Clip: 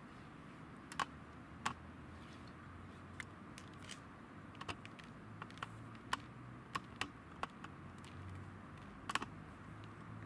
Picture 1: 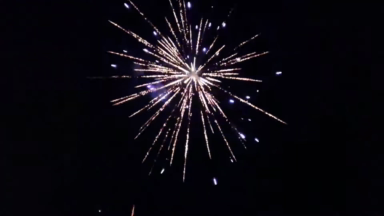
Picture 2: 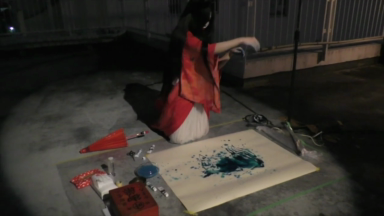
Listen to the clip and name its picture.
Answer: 2